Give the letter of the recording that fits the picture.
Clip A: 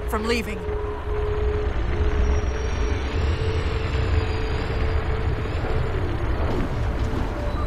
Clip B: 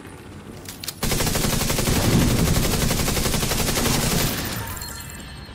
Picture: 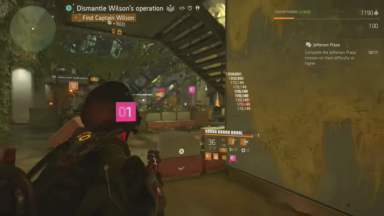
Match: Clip B